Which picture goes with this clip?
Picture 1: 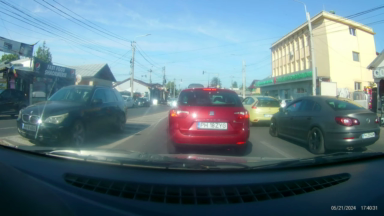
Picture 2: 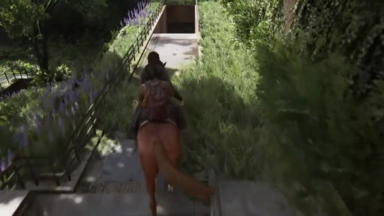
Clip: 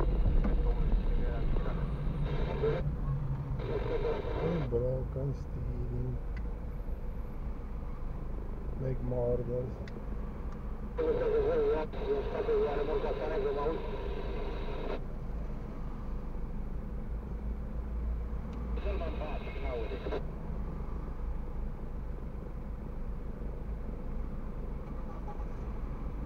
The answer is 1